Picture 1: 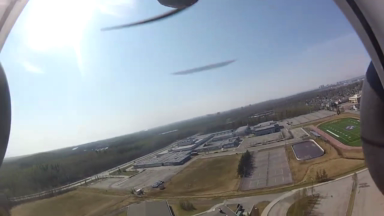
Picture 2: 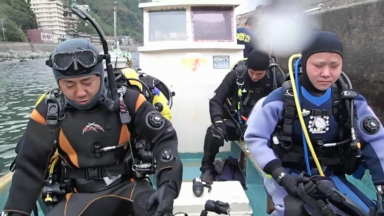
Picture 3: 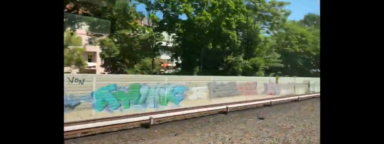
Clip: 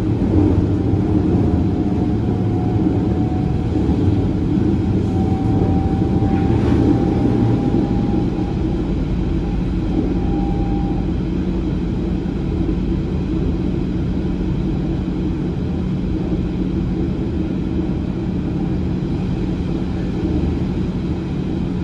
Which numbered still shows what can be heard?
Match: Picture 3